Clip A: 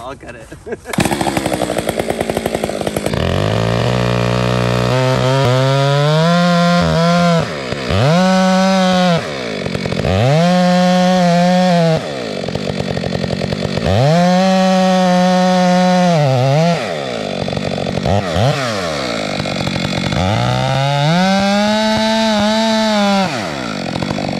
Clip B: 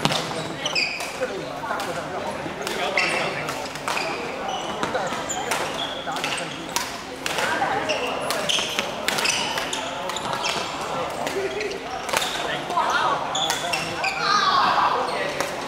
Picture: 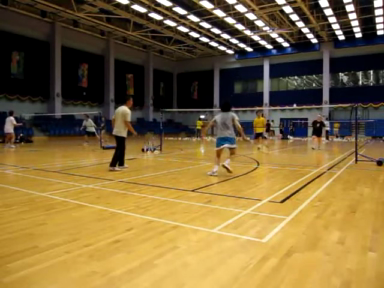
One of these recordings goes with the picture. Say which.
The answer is B